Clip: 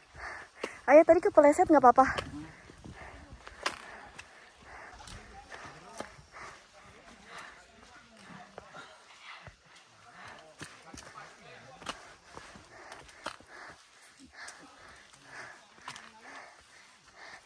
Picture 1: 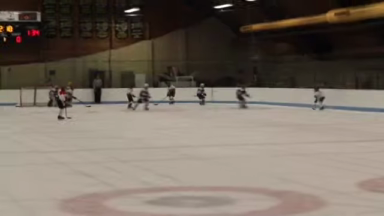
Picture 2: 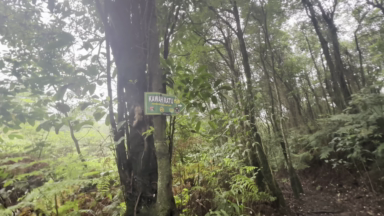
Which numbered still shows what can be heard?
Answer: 2